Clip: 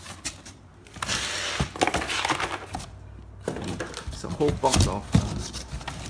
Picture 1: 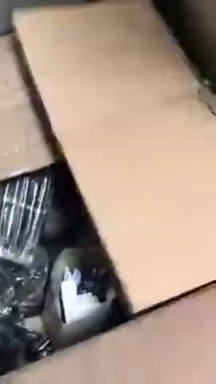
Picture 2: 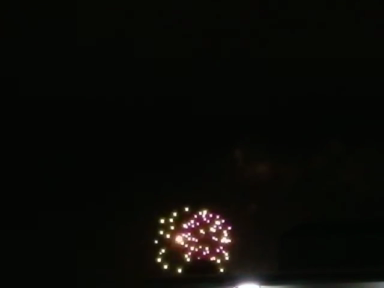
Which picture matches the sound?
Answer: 1